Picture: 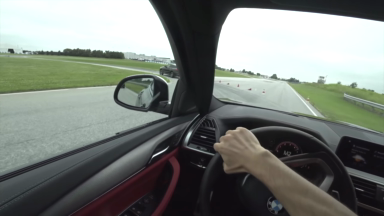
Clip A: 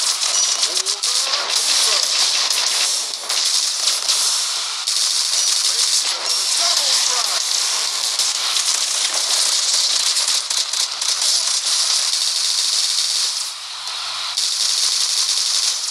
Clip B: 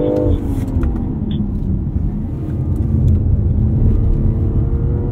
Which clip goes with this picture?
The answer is B